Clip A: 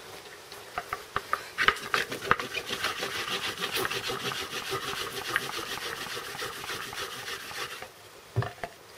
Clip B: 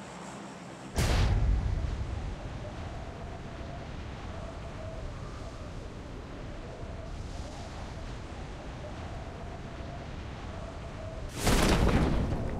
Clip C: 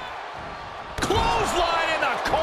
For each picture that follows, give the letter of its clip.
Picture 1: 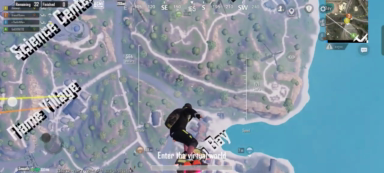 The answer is B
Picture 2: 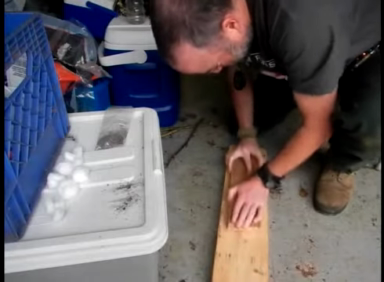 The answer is A